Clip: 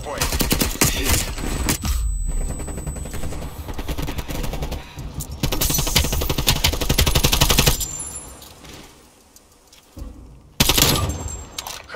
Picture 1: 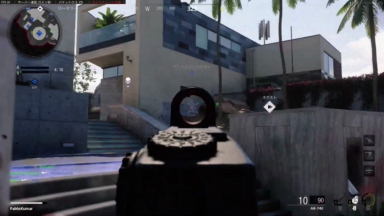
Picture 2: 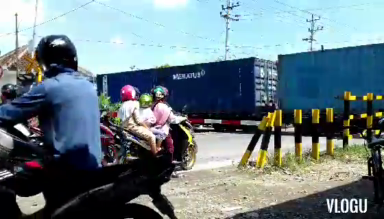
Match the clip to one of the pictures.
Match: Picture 1